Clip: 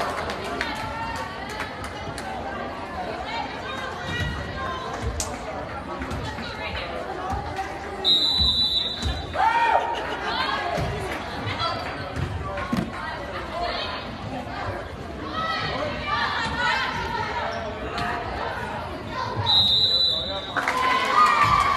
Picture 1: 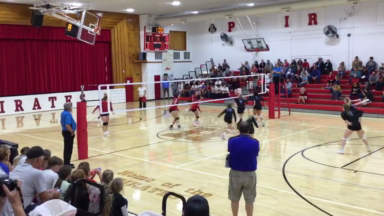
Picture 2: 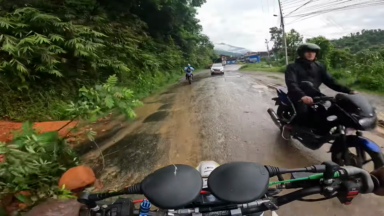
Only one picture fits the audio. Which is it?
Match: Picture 1